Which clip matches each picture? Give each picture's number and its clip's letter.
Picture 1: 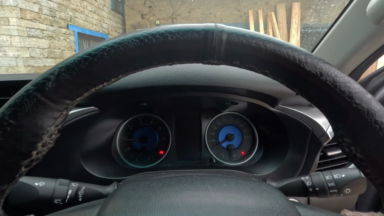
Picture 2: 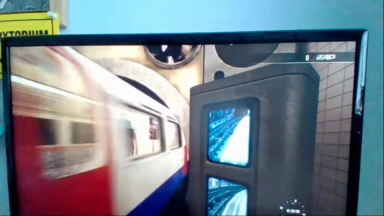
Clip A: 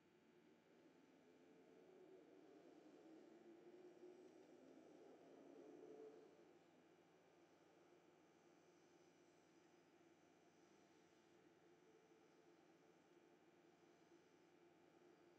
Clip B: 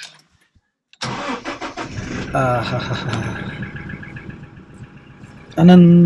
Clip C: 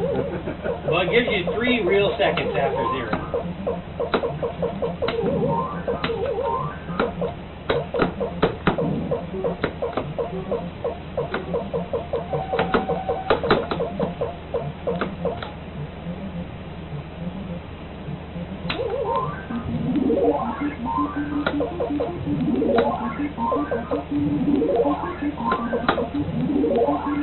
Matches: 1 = B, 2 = A